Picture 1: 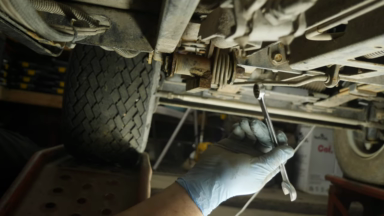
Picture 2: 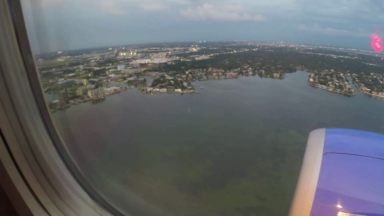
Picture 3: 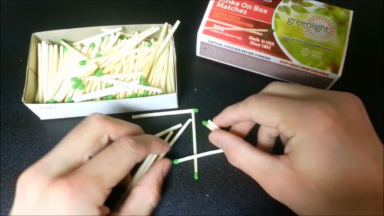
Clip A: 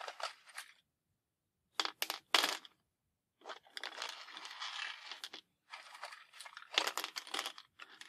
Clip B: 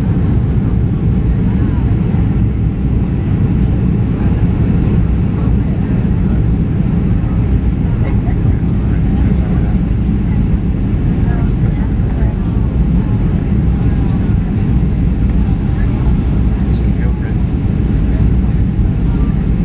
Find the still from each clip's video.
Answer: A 3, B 2